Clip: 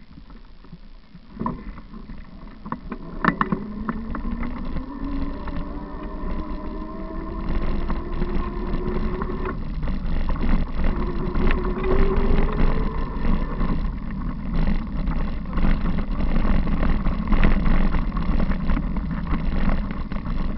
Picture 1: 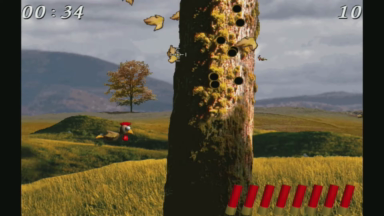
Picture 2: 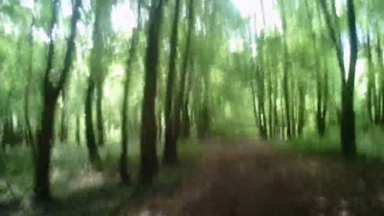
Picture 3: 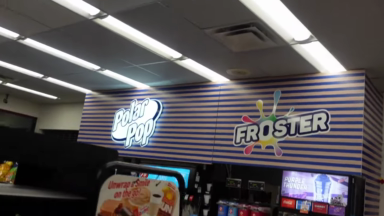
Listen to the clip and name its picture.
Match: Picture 2